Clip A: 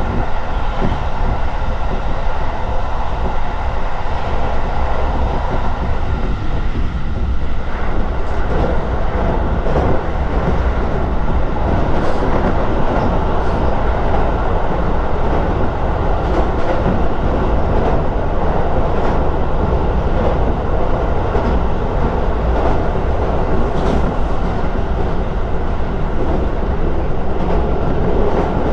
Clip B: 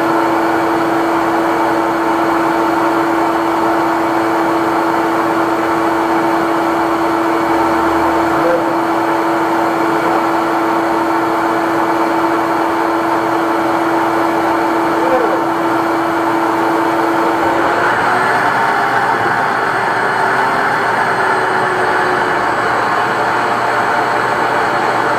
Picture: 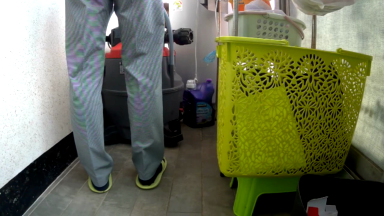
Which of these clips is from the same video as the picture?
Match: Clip B